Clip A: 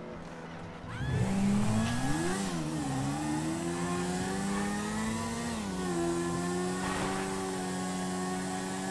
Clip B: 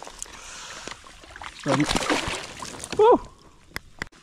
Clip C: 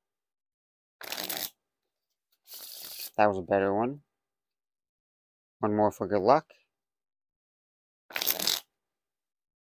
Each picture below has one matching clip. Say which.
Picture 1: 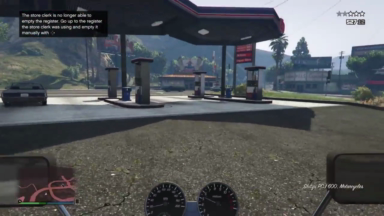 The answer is A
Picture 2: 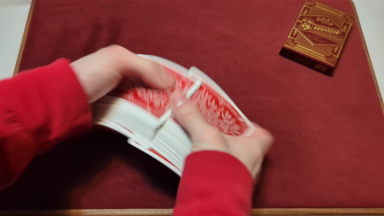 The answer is C